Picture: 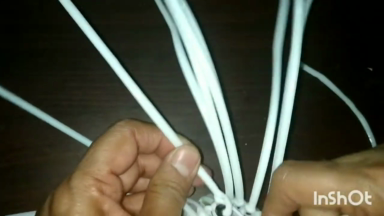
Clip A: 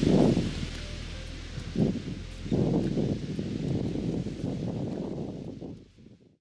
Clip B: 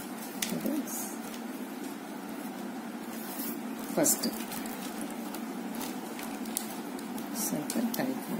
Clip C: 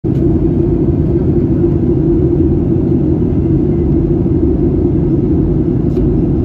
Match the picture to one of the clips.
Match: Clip B